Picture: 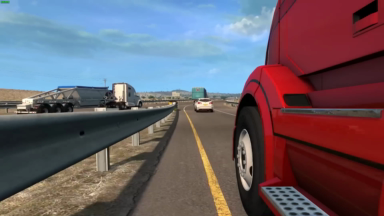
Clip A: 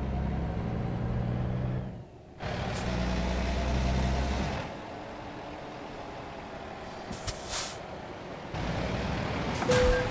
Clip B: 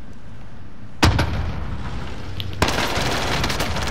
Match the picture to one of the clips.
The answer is A